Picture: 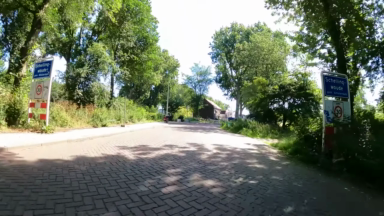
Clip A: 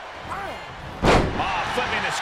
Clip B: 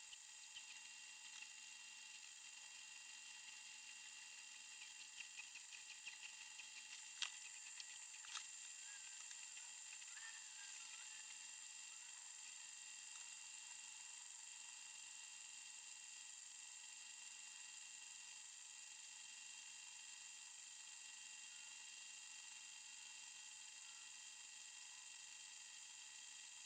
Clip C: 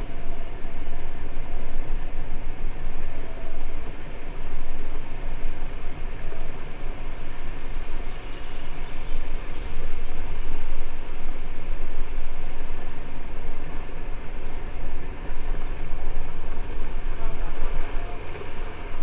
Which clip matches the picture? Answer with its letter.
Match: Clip C